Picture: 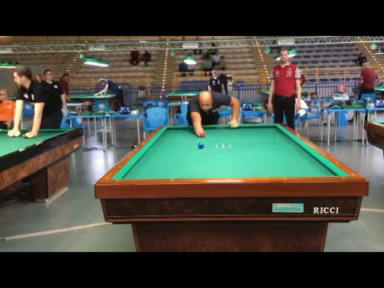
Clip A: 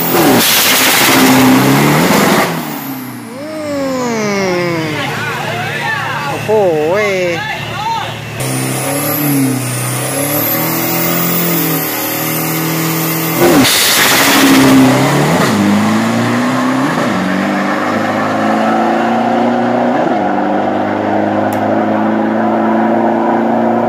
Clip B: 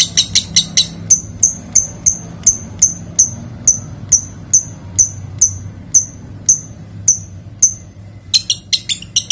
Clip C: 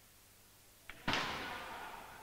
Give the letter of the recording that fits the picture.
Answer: C